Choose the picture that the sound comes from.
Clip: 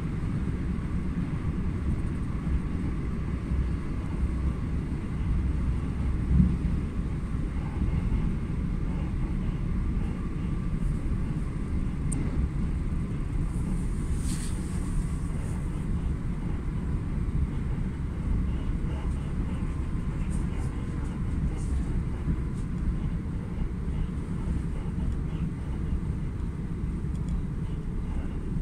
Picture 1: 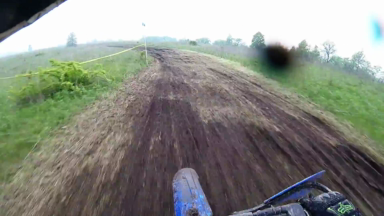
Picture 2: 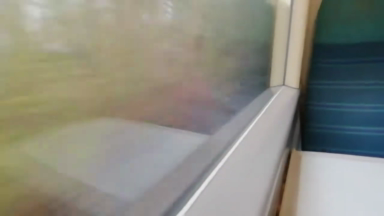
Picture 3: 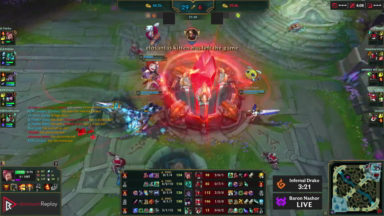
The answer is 2